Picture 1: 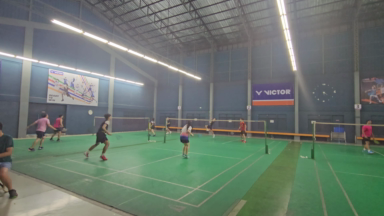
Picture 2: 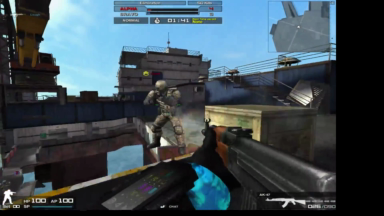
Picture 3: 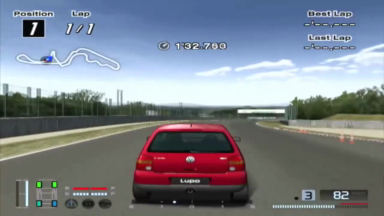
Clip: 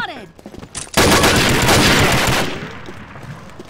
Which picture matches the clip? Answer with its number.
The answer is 2